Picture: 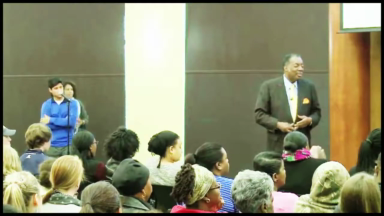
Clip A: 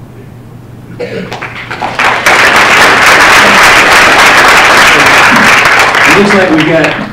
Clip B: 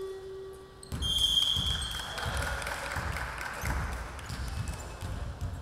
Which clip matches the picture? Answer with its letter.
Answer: A